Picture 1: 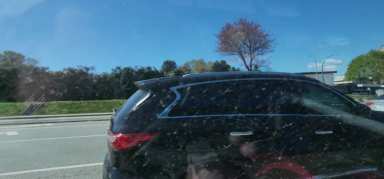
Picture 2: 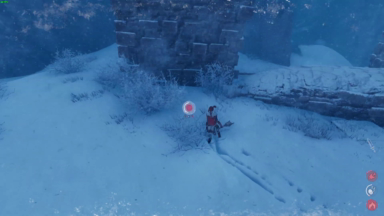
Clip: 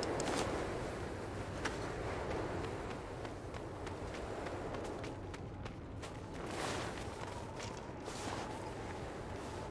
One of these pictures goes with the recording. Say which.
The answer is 2